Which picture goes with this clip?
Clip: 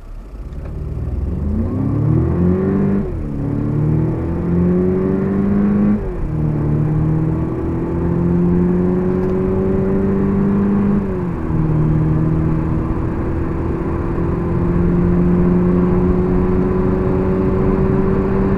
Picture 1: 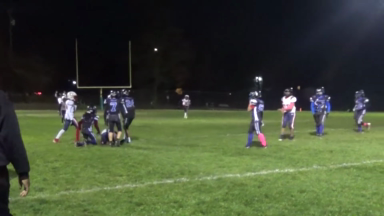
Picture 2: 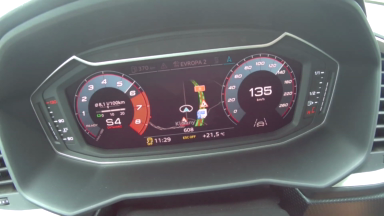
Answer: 2